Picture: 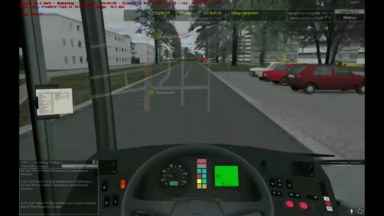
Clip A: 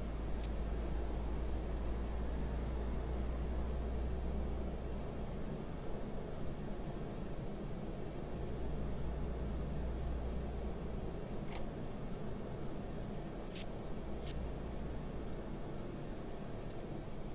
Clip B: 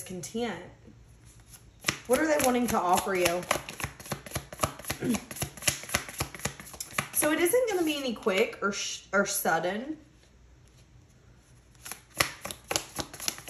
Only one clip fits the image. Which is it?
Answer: A